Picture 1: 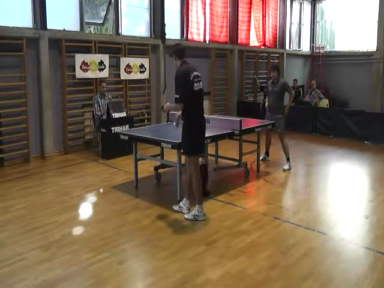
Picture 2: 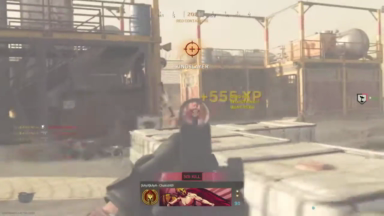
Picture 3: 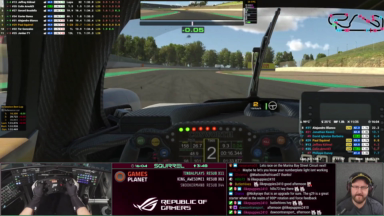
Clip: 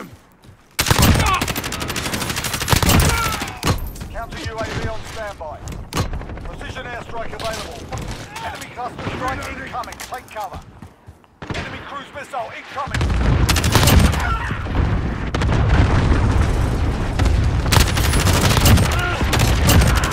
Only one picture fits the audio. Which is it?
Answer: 2